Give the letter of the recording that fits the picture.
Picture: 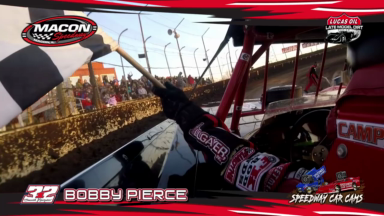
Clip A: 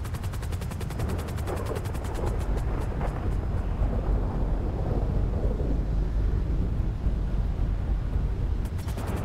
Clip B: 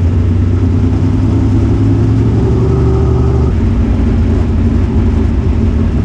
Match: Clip B